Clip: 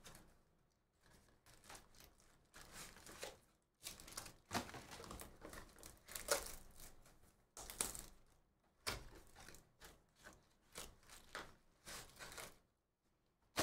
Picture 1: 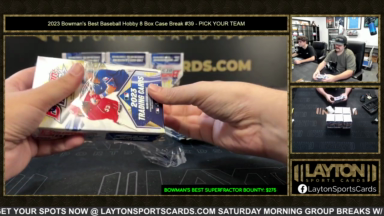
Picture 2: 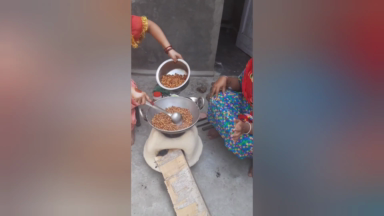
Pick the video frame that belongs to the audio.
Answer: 1